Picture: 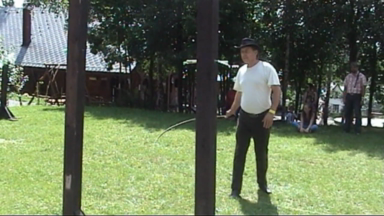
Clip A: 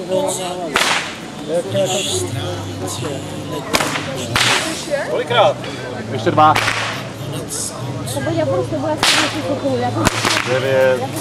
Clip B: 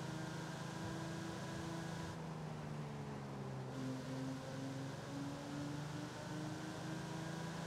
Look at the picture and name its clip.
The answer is A